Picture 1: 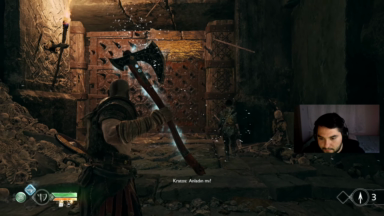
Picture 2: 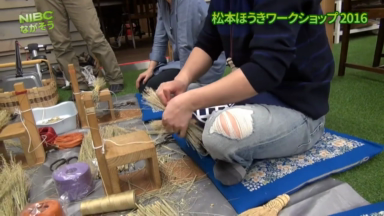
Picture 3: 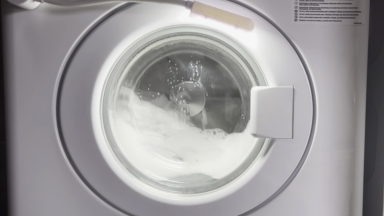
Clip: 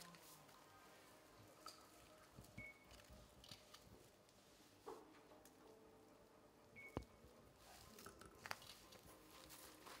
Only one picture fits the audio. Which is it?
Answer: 2